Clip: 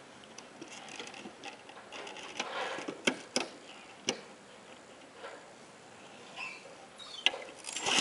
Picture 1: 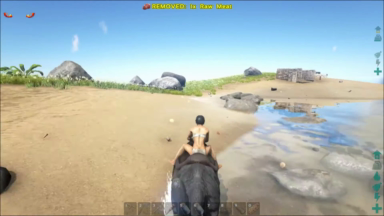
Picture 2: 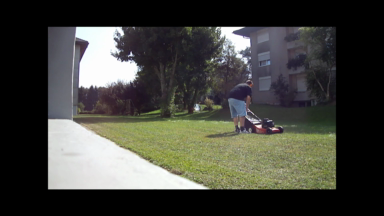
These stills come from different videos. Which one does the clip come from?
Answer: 2